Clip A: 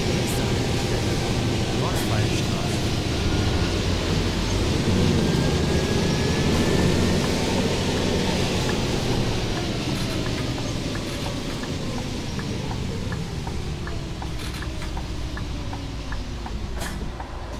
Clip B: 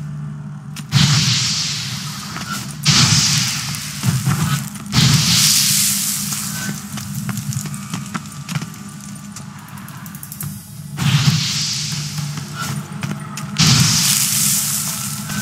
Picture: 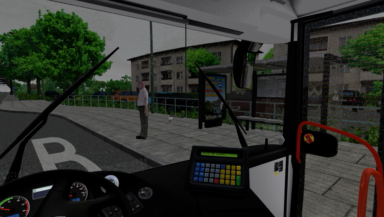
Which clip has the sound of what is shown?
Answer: A